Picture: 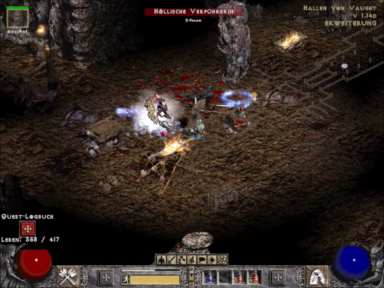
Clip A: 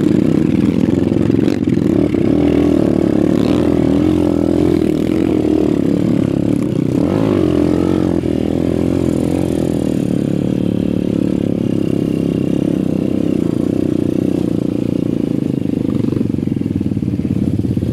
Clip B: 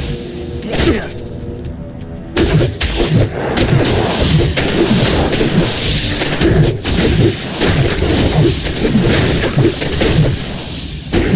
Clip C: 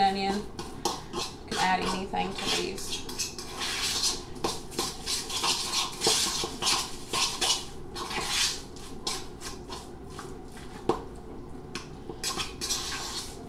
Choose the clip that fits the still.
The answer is B